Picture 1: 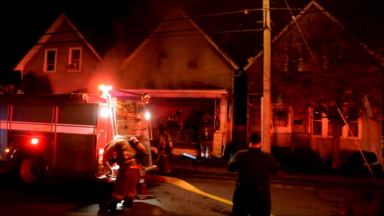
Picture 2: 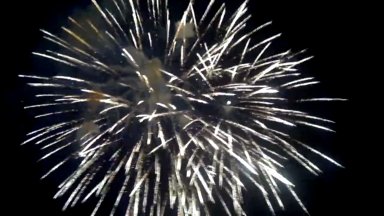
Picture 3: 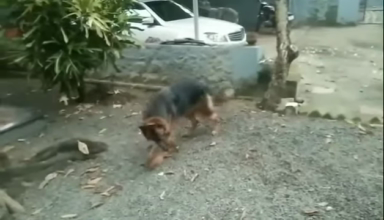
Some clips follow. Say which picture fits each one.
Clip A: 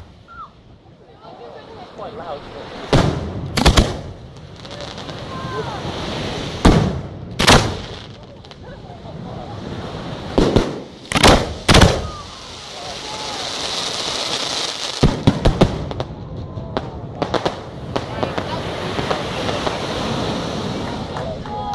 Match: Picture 2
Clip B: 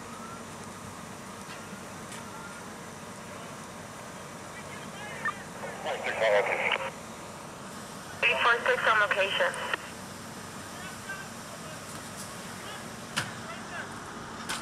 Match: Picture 1